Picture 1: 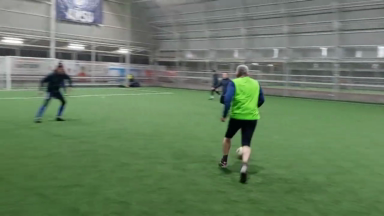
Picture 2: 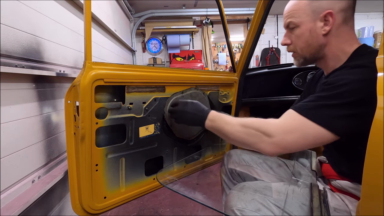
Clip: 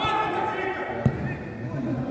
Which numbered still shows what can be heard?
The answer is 1